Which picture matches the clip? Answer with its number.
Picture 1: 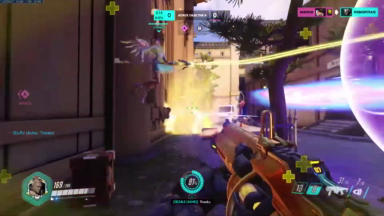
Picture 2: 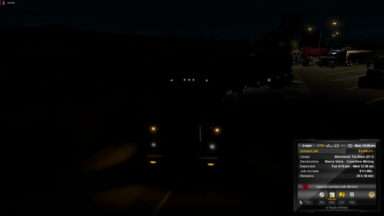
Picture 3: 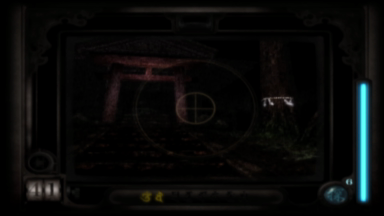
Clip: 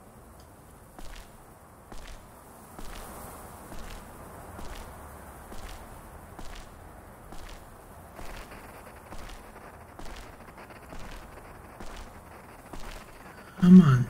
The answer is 3